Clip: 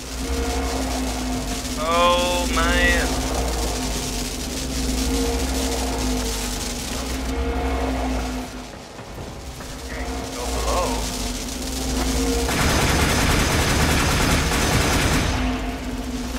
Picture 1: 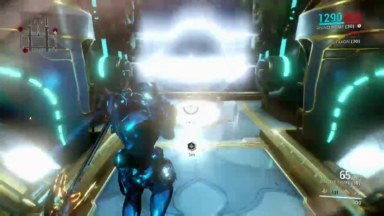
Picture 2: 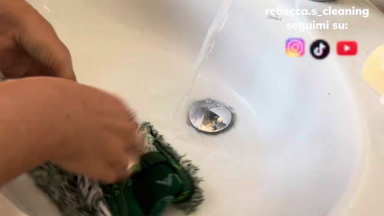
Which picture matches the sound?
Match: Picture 1